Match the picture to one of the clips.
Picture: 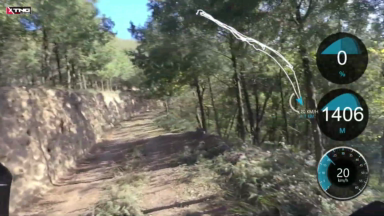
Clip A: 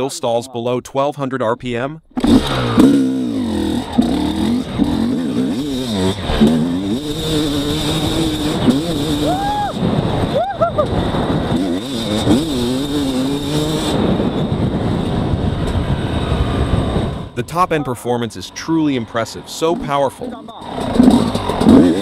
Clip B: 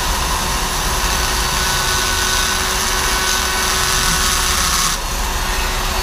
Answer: A